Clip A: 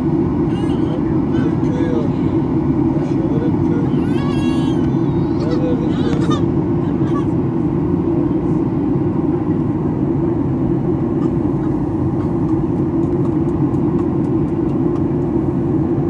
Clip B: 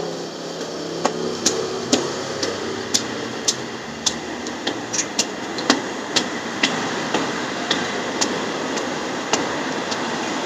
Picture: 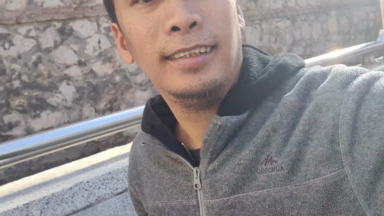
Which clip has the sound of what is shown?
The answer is B